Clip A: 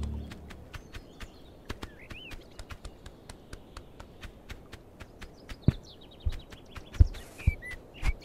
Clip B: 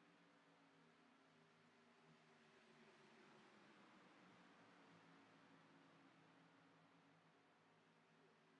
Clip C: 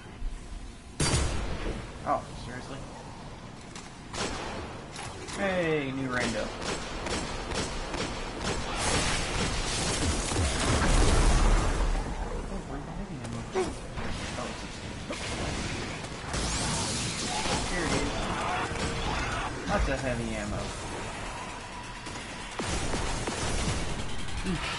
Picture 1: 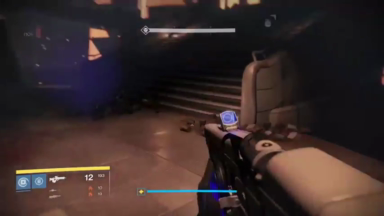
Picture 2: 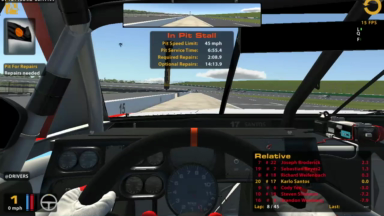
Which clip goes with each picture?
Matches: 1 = C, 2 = B